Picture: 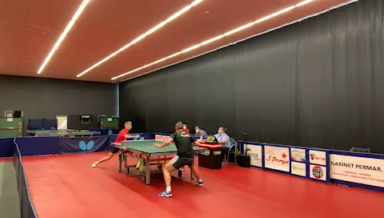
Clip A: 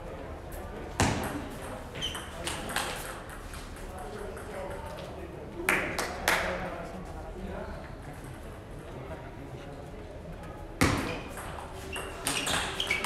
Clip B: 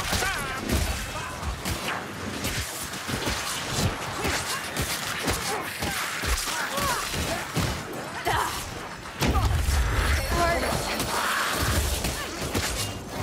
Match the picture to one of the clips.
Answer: A